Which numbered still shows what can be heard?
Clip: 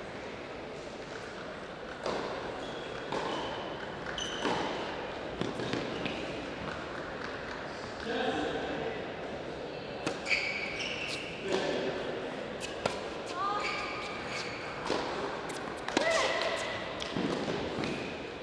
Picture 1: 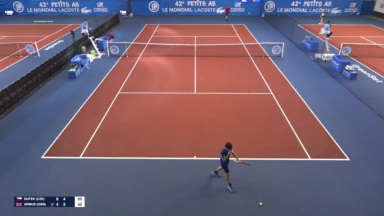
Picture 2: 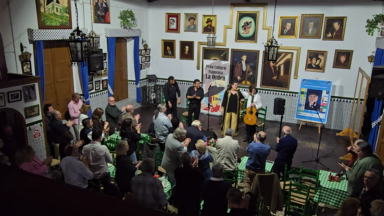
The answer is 1